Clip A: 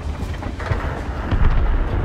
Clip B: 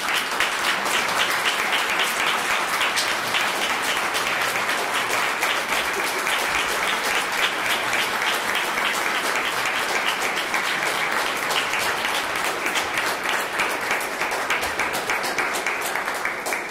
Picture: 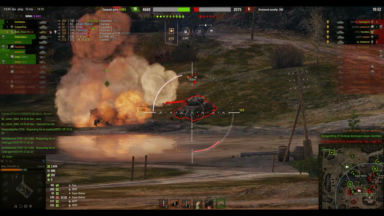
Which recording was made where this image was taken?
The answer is A